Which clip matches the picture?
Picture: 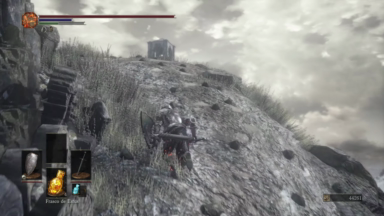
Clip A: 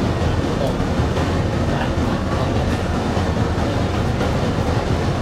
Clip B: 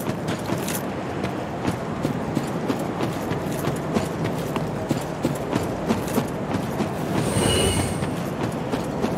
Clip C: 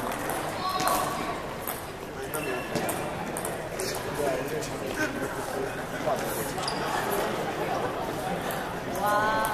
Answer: B